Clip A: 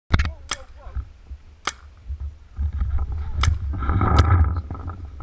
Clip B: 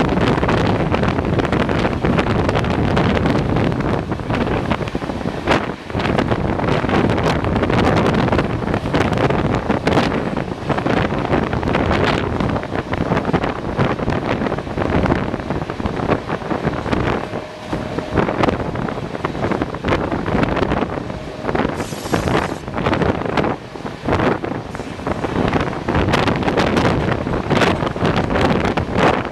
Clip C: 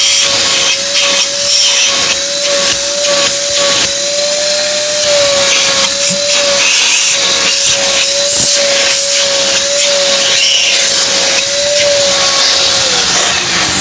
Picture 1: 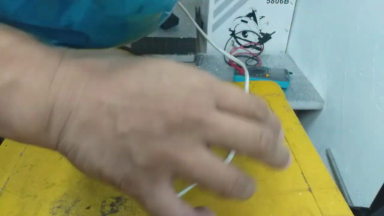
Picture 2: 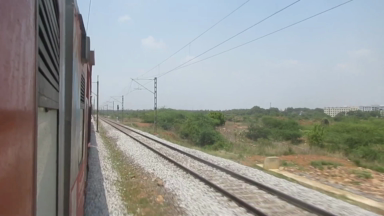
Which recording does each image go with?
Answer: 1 C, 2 B